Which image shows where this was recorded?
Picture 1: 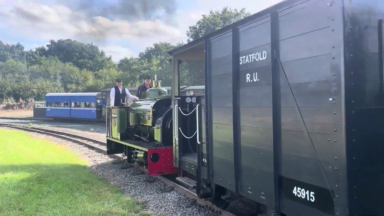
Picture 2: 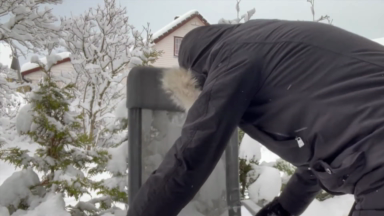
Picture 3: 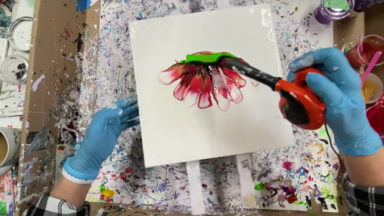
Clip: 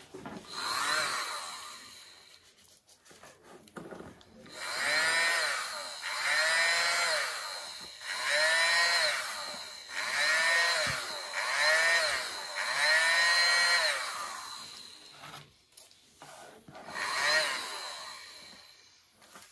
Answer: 3